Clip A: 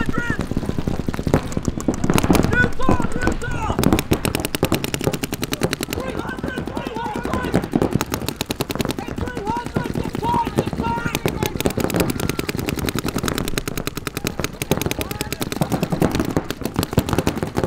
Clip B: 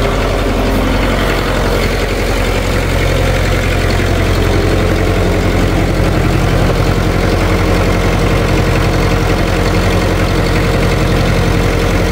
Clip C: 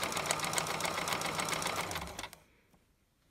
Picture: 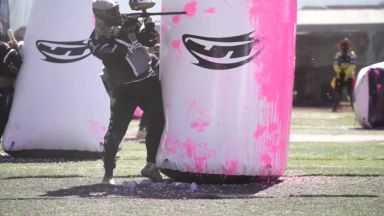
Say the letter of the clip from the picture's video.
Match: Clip A